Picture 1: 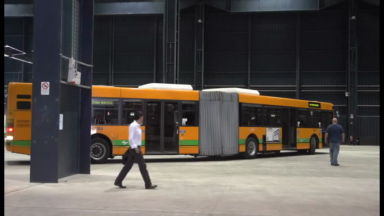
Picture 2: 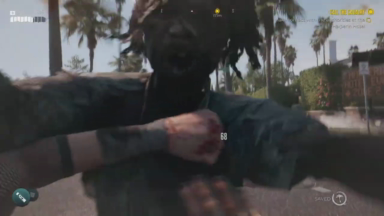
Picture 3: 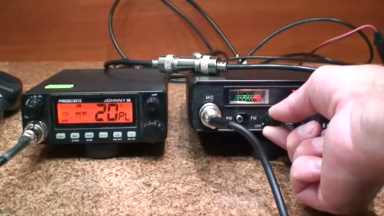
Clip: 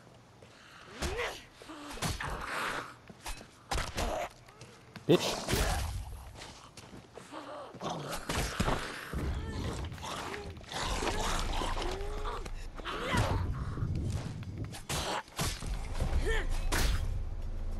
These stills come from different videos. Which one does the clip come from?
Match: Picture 2